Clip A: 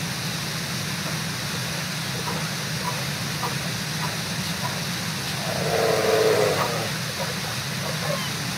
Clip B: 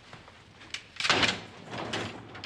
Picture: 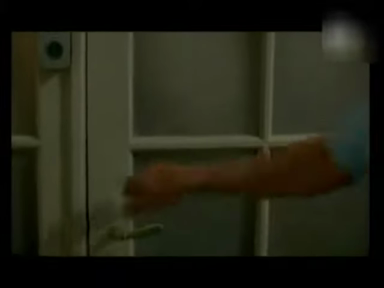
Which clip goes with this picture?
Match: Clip B